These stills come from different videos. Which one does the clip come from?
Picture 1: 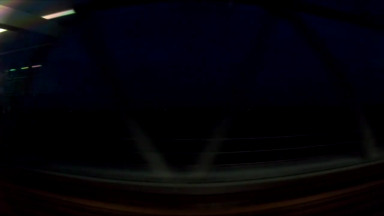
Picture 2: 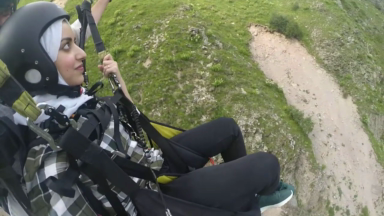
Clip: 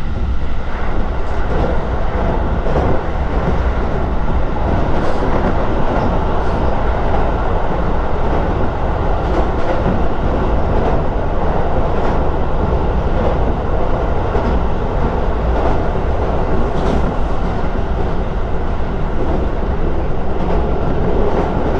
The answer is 1